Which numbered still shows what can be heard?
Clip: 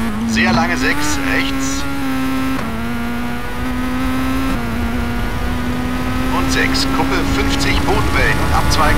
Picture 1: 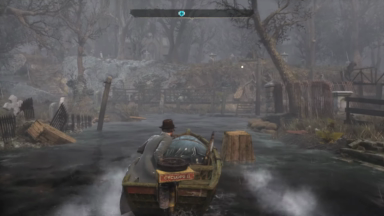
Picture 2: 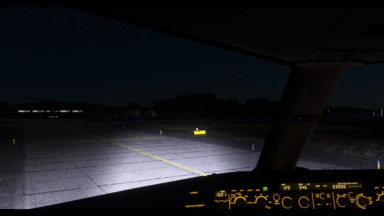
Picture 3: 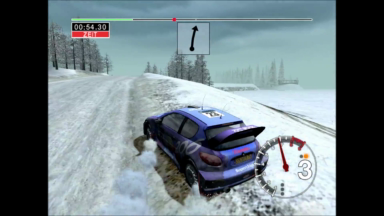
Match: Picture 3